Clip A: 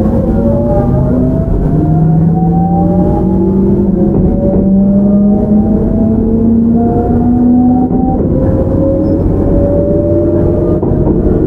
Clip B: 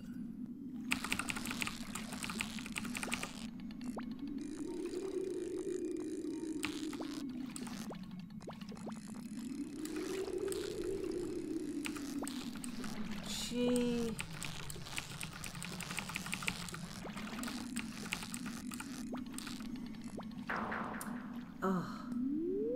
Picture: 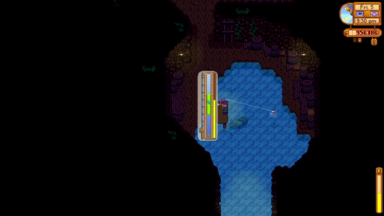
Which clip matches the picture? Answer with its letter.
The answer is B